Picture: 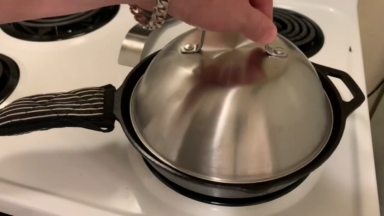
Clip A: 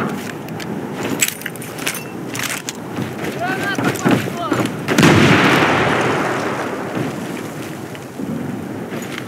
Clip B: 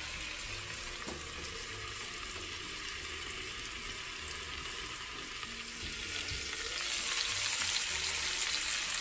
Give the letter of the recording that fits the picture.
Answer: B